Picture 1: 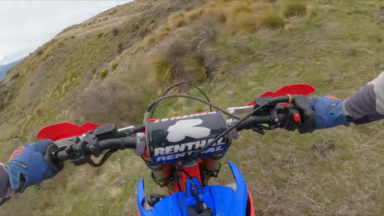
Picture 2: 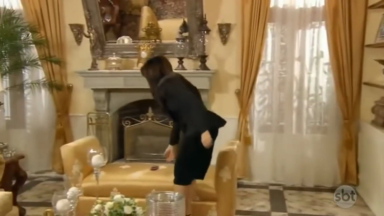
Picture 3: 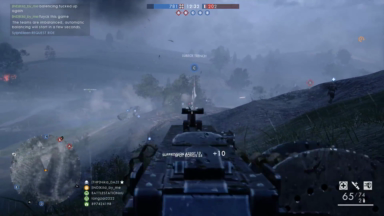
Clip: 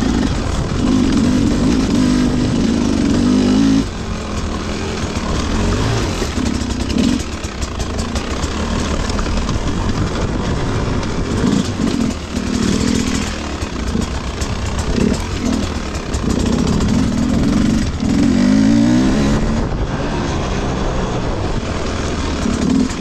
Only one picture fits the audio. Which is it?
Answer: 1